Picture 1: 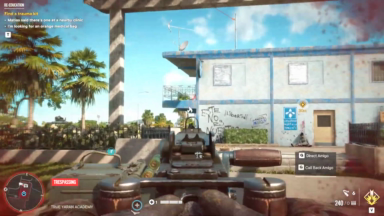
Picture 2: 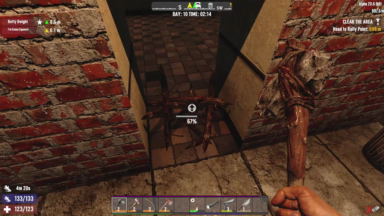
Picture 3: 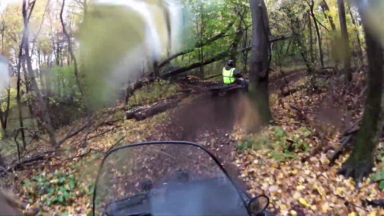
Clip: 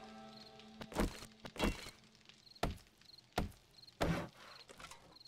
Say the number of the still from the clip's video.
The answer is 2